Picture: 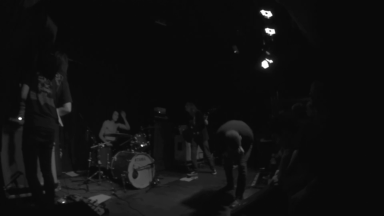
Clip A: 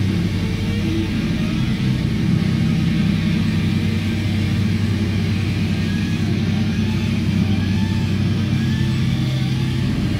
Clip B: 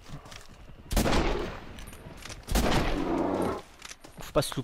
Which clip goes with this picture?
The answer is A